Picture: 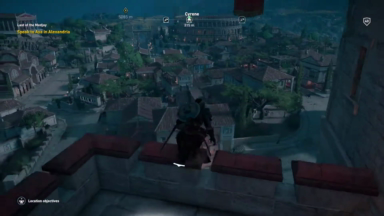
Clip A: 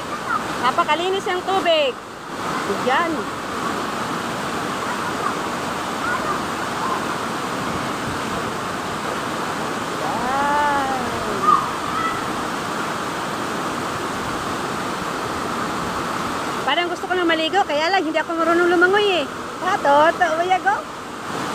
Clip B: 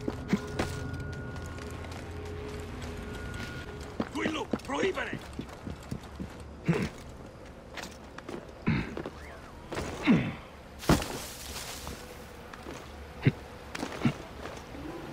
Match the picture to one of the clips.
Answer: B